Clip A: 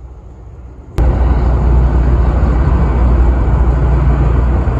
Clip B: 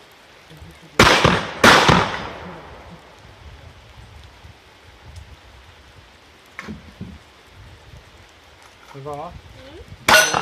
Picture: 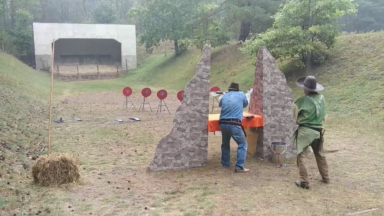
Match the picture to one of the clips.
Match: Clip B